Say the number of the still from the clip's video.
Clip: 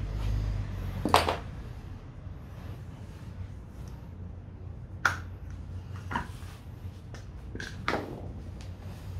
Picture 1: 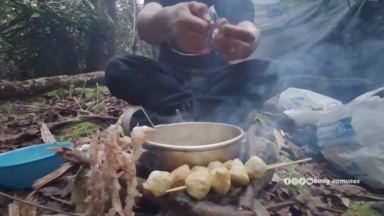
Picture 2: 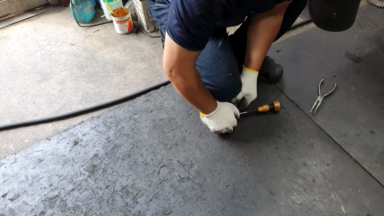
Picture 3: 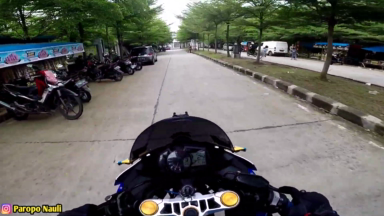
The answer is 2